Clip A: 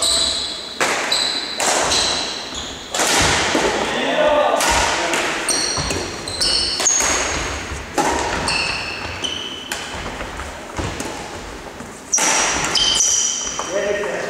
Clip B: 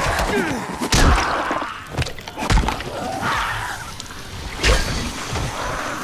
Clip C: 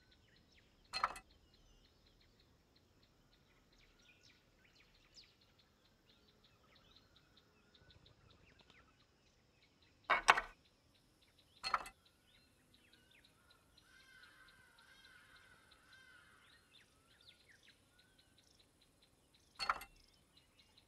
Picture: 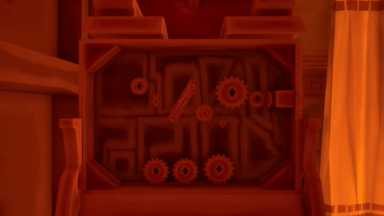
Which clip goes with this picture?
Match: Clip C